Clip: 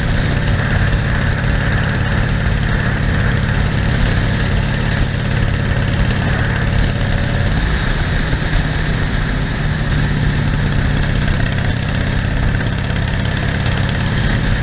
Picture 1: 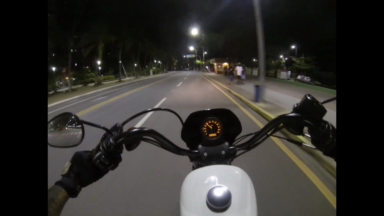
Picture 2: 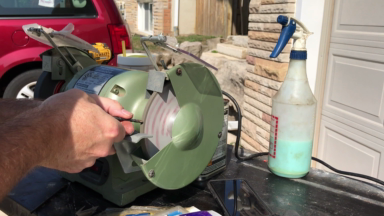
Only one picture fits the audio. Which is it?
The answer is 1